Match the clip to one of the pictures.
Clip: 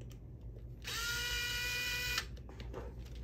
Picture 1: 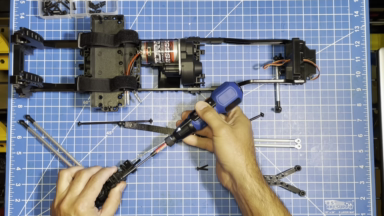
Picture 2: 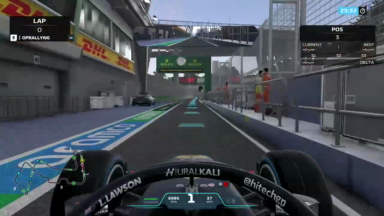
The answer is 1